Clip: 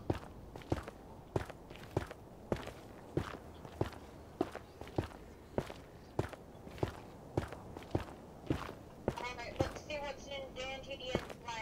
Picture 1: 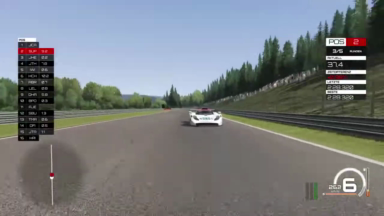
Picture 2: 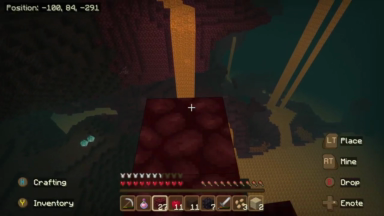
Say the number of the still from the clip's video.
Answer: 2